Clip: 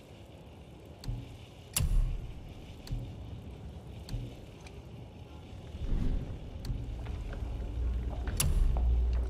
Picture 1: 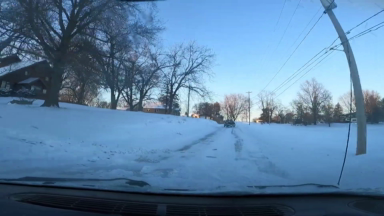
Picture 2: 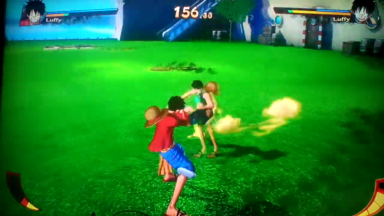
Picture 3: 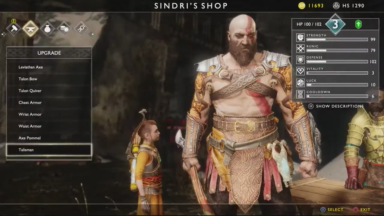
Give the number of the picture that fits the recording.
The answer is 3